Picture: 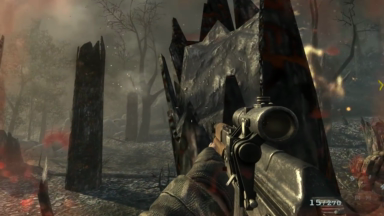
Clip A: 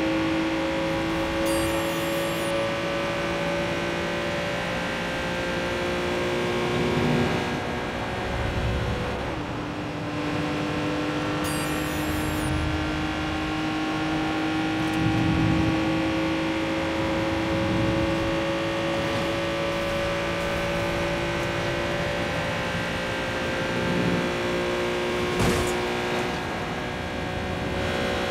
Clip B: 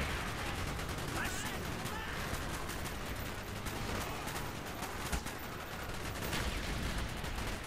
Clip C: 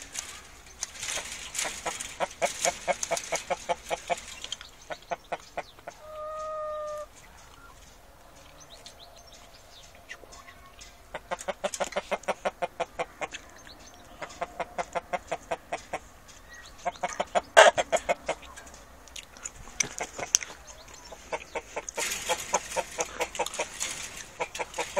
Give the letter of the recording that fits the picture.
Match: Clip B